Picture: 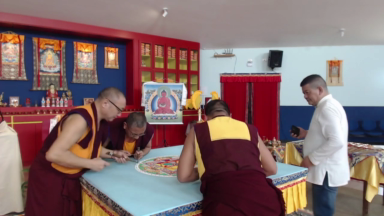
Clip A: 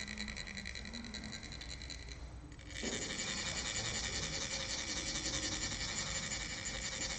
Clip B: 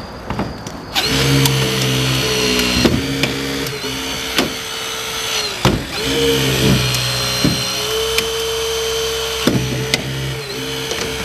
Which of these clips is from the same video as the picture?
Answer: A